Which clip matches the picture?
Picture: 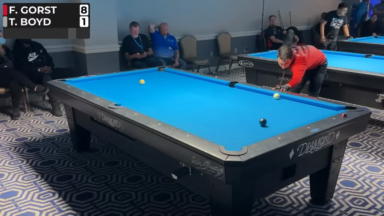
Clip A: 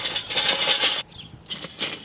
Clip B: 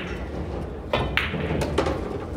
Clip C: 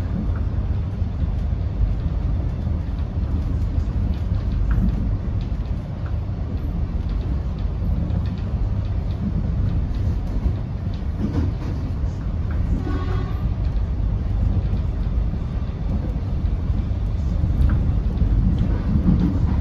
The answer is B